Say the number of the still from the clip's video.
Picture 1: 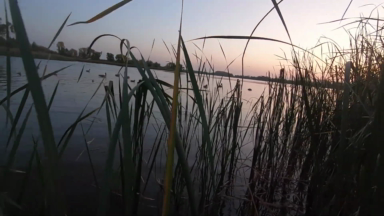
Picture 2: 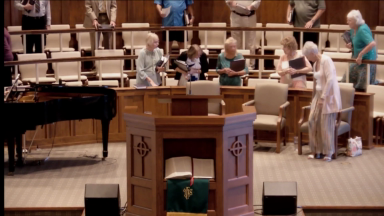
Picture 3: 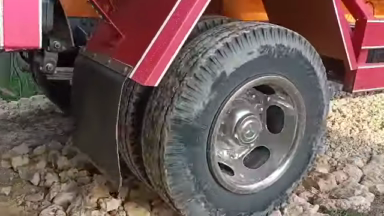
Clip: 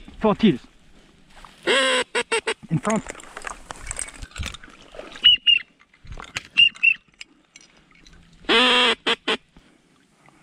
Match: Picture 1